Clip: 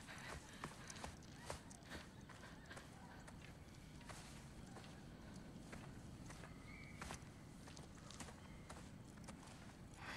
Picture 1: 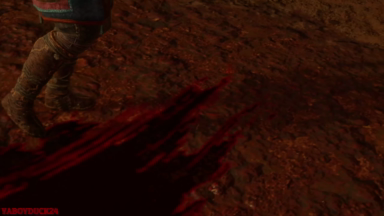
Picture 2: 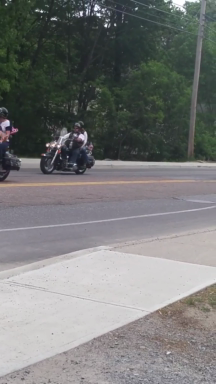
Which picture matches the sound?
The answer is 1